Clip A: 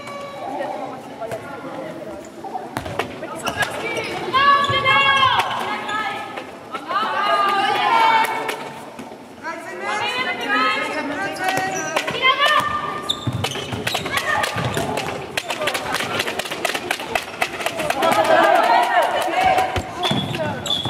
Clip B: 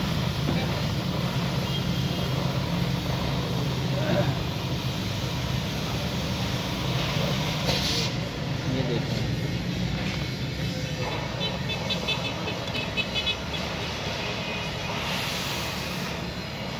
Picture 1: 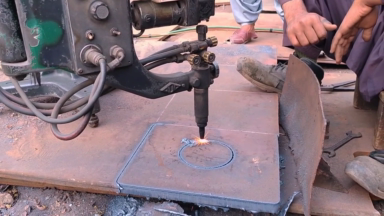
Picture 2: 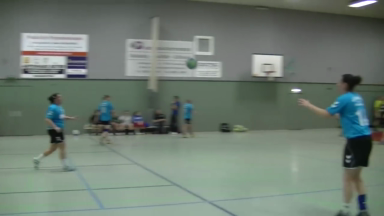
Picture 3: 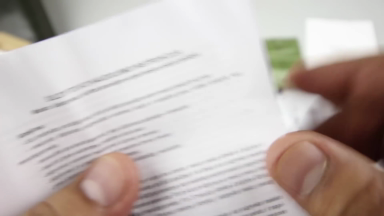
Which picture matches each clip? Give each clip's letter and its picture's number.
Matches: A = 2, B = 1